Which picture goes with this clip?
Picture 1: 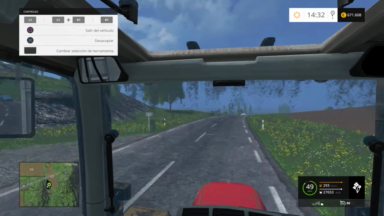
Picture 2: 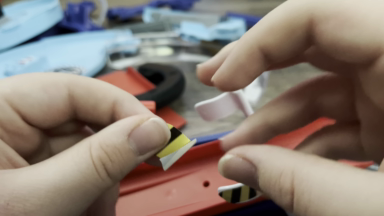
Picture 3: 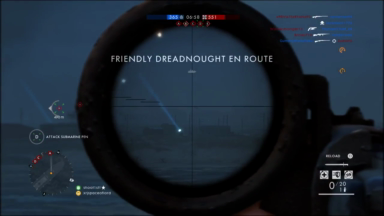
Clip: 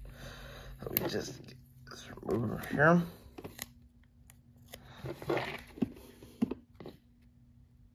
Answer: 2